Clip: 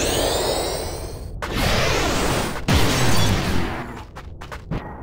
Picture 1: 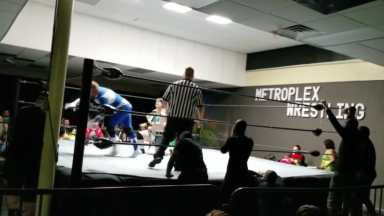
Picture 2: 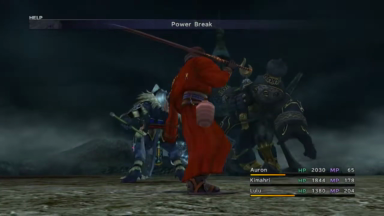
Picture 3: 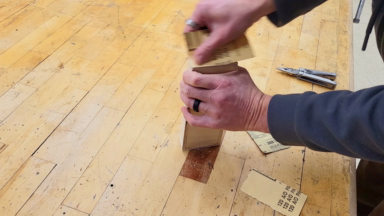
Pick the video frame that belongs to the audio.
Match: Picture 2